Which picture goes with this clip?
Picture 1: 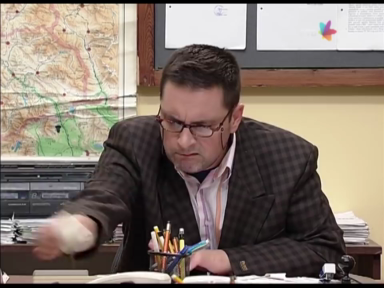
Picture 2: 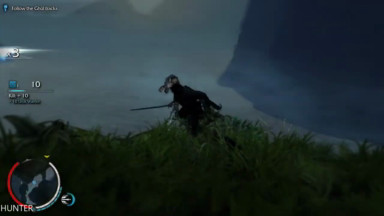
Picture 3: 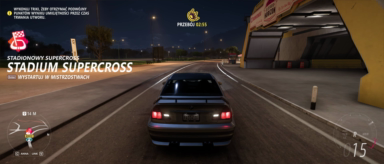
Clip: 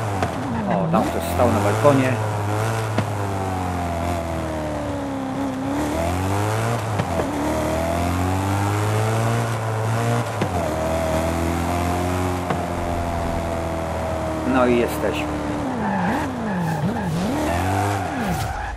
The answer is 3